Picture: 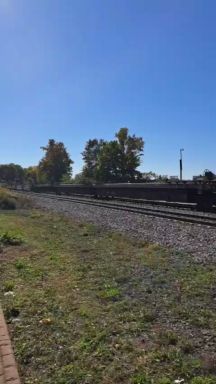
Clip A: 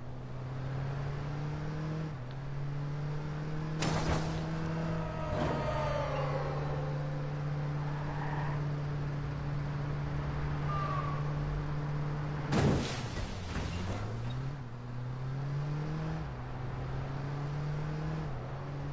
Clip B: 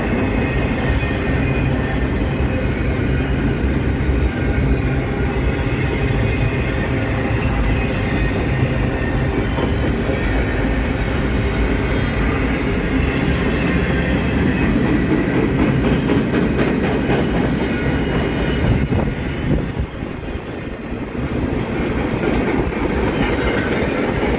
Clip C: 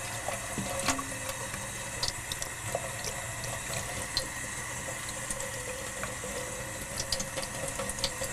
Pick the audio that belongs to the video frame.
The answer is B